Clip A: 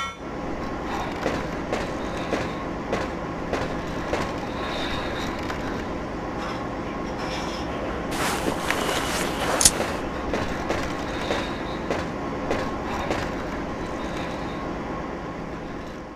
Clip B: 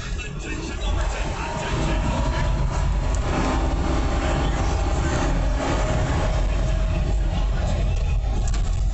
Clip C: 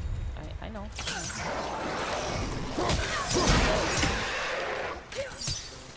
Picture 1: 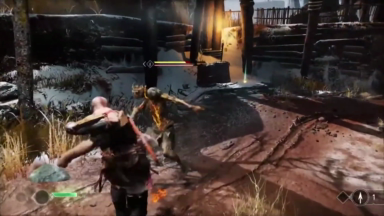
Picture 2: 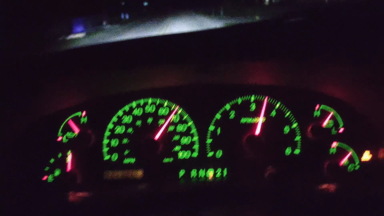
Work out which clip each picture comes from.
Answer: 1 C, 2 B